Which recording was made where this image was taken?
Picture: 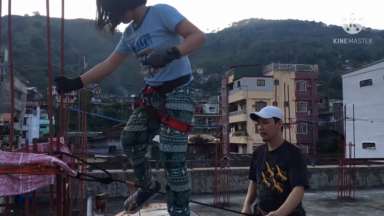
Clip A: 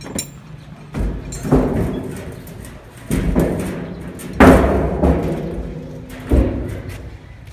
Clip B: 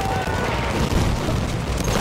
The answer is A